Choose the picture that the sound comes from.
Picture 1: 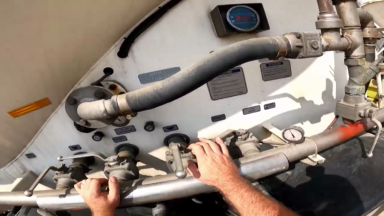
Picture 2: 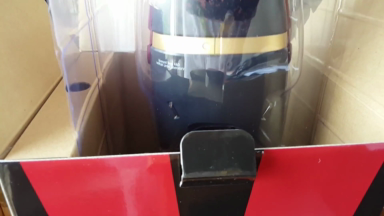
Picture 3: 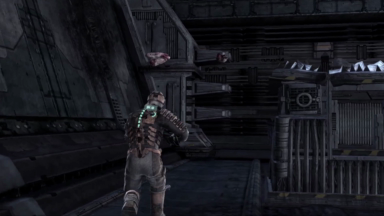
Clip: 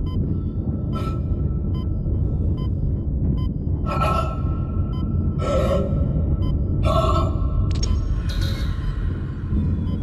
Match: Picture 3